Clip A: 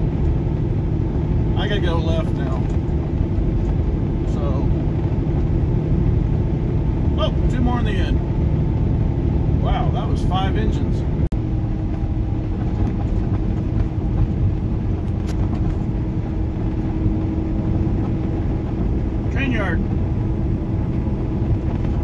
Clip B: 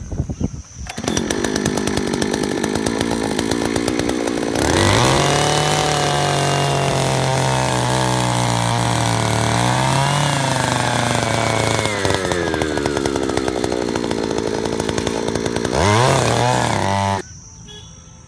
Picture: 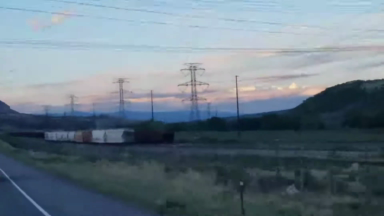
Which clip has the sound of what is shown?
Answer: A